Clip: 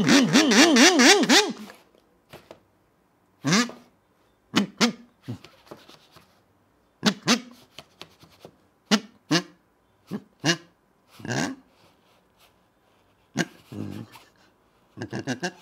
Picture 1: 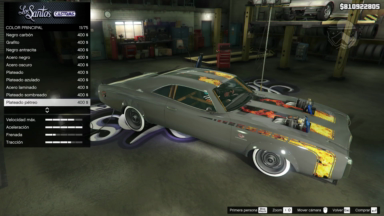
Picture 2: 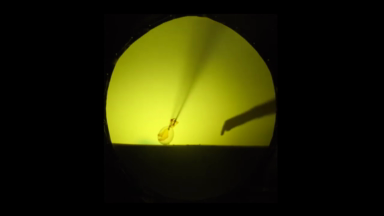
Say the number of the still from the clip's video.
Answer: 2